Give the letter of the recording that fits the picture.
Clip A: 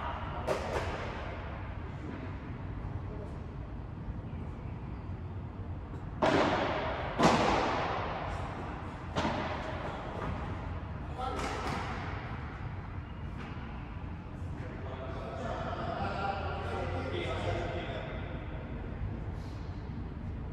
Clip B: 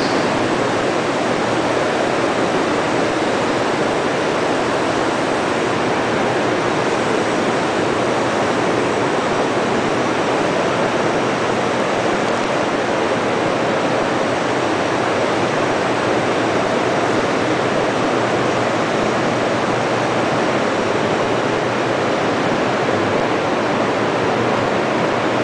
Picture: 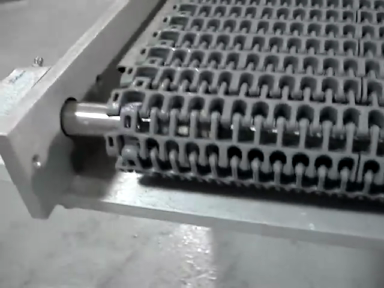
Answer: B